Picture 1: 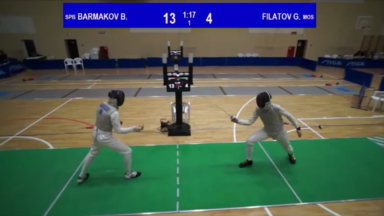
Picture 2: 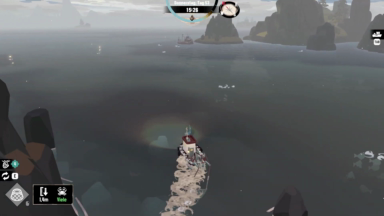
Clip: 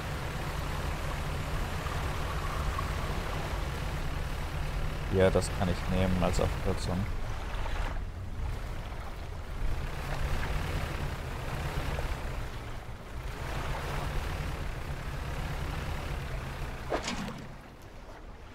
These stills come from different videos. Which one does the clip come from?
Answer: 2